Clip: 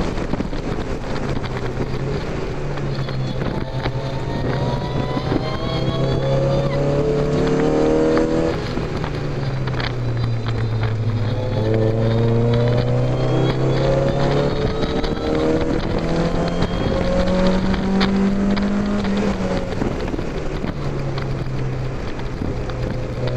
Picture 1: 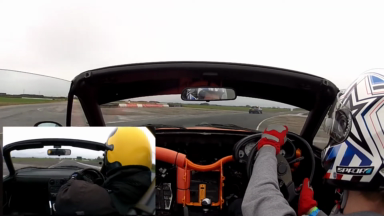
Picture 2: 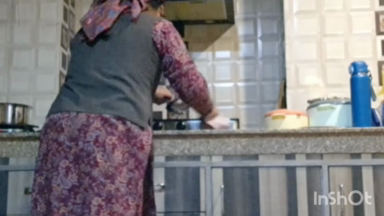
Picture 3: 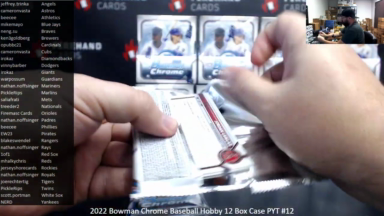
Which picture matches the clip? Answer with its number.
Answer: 1